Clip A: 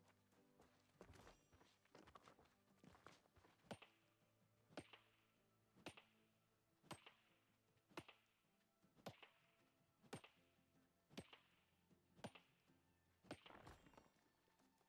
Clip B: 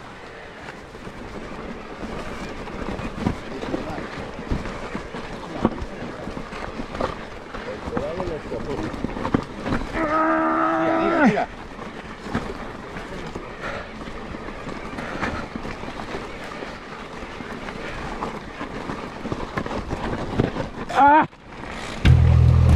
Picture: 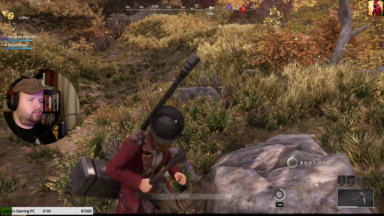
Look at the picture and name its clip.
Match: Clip A